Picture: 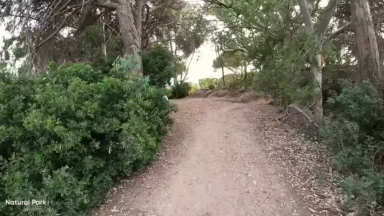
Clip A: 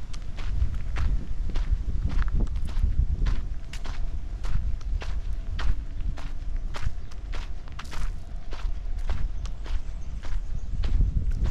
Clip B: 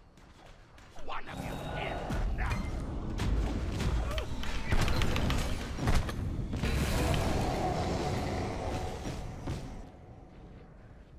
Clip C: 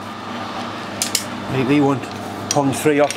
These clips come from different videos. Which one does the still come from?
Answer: A